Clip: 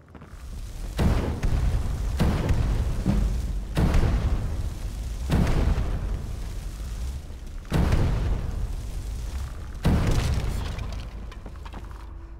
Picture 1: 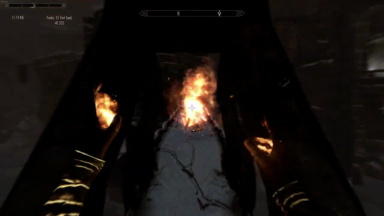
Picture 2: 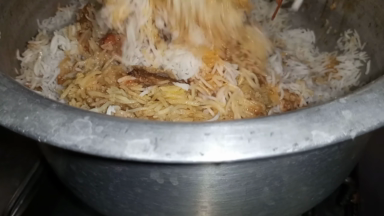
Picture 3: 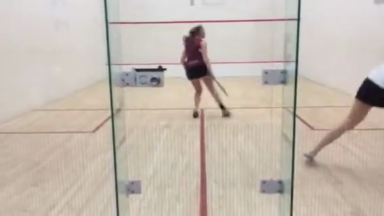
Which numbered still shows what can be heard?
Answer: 1